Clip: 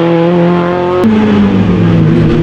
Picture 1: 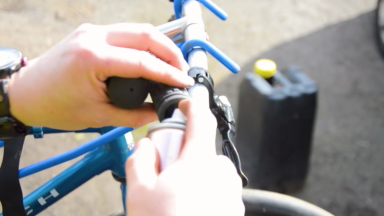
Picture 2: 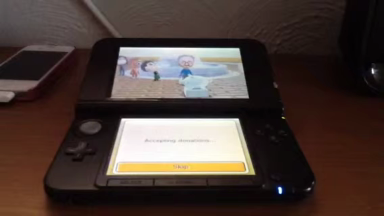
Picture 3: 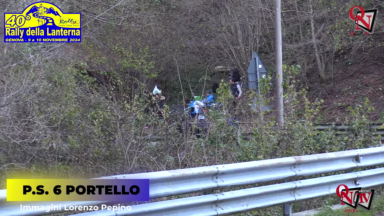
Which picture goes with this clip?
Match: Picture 3